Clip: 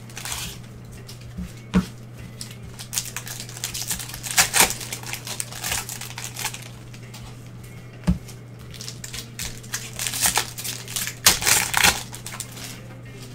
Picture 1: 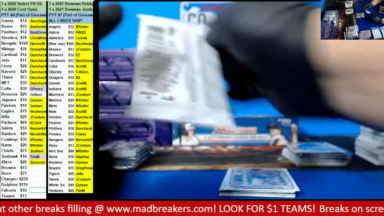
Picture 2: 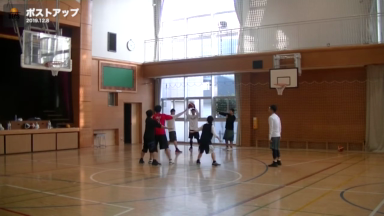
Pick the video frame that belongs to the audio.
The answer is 1